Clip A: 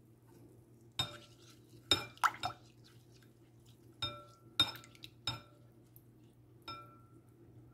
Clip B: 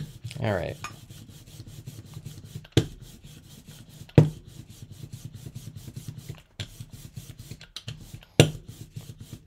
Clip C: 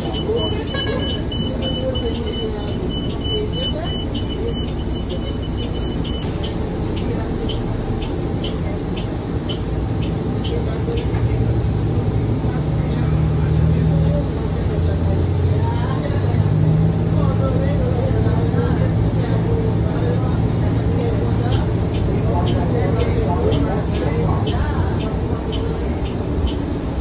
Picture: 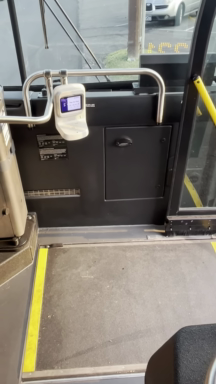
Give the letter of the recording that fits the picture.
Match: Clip C